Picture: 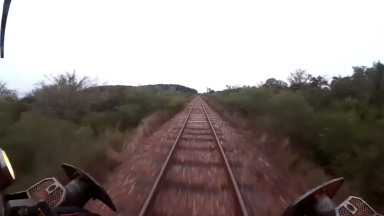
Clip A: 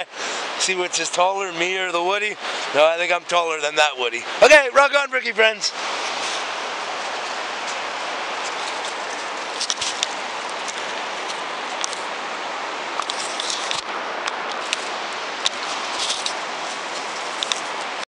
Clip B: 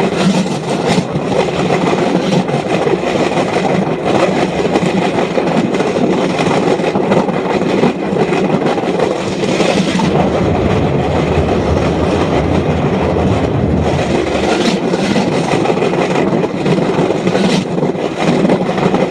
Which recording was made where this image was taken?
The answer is B